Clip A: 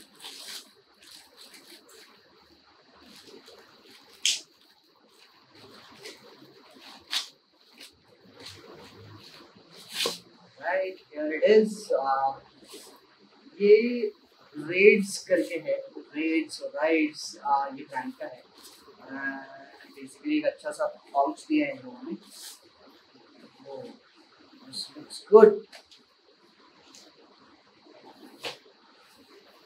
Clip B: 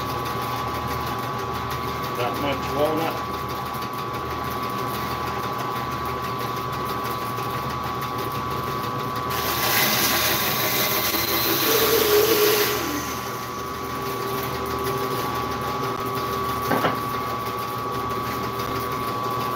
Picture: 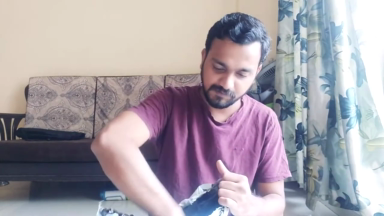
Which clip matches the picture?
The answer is A